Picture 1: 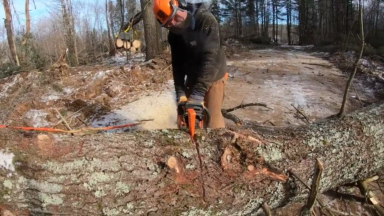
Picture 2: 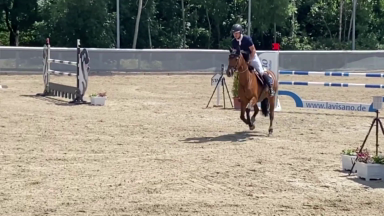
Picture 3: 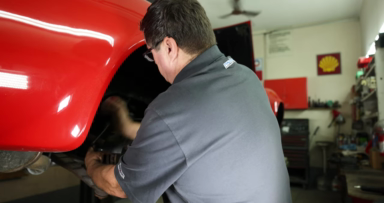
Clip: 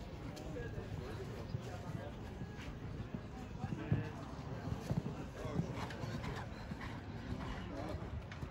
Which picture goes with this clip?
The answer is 2